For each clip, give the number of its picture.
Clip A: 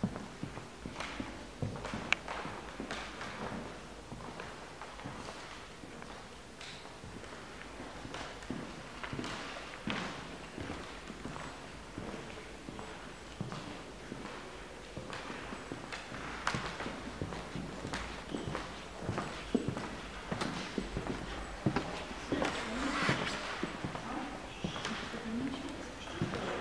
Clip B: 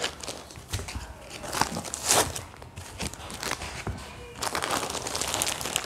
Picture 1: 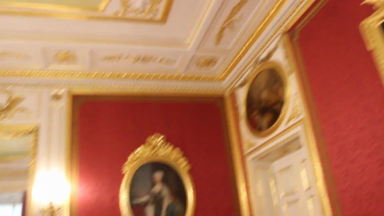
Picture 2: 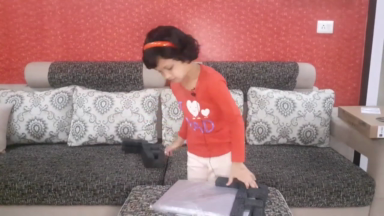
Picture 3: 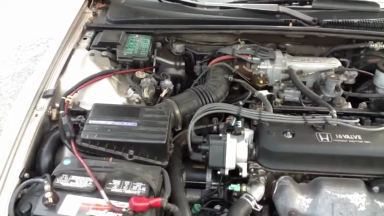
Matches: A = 1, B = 2